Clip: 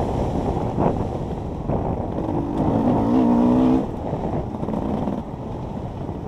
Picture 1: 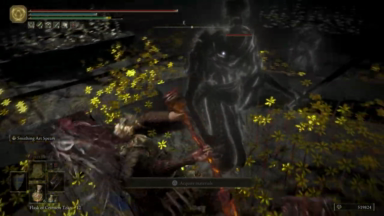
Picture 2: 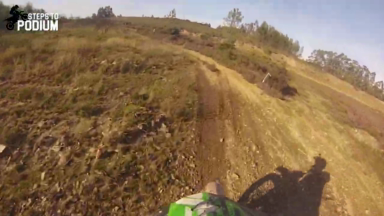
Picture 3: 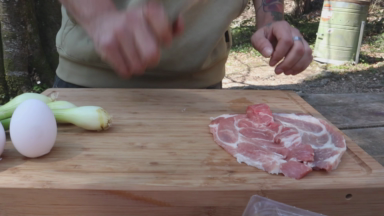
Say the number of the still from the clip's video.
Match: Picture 2